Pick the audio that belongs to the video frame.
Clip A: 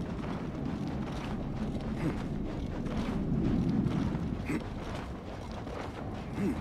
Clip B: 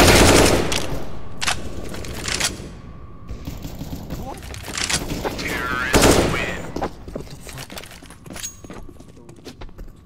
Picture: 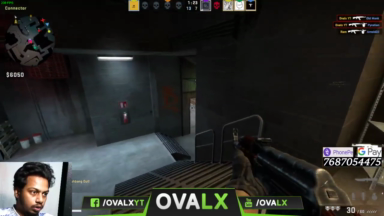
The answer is B